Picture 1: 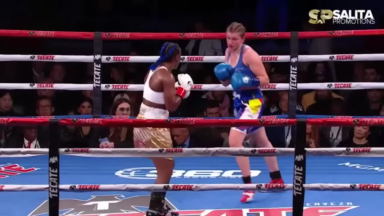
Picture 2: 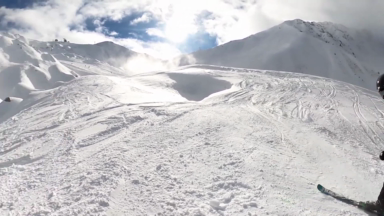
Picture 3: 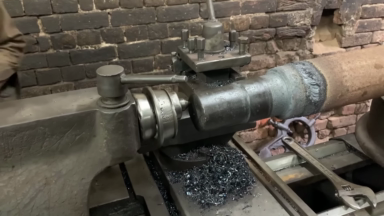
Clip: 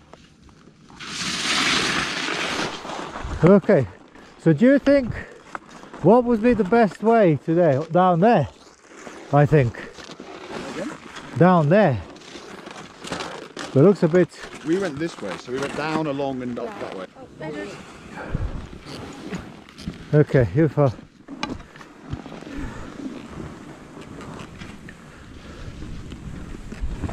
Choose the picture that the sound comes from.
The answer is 2